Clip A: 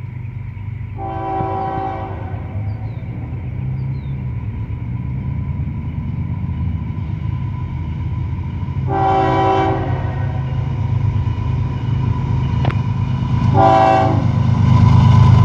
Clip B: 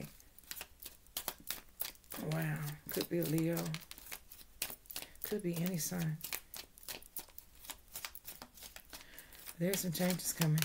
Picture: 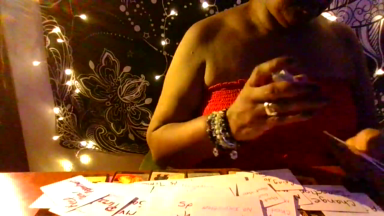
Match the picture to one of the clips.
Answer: B